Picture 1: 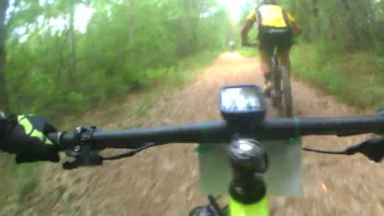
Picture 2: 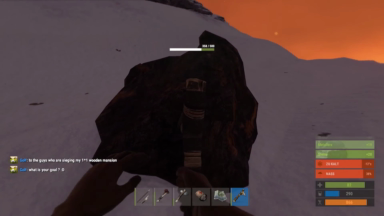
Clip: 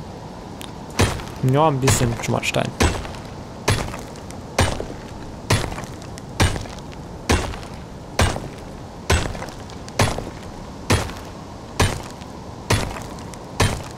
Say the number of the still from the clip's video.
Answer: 2